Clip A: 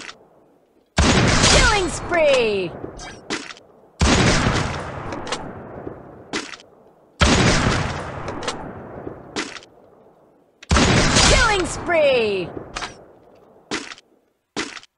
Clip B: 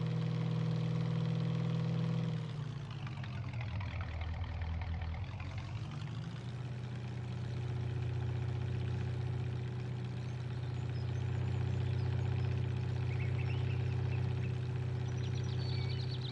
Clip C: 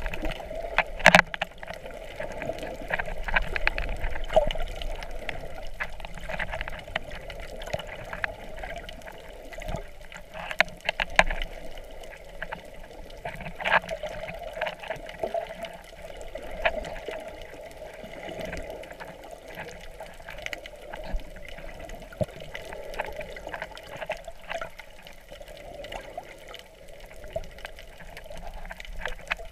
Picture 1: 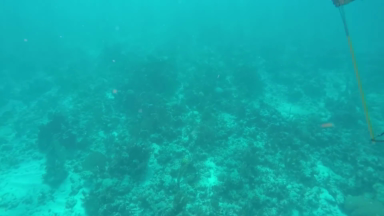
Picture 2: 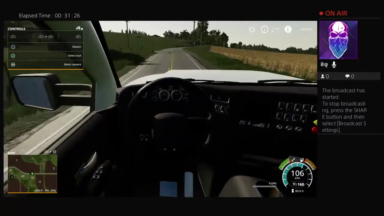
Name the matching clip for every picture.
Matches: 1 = C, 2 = B